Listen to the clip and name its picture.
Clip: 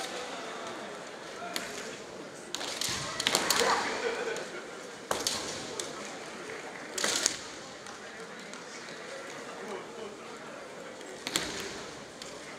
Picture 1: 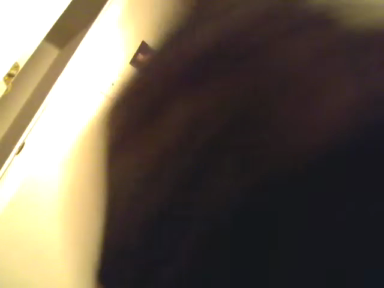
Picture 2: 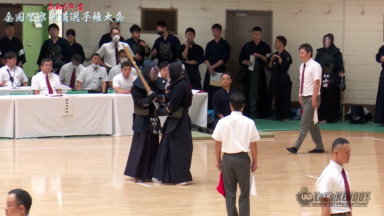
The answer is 2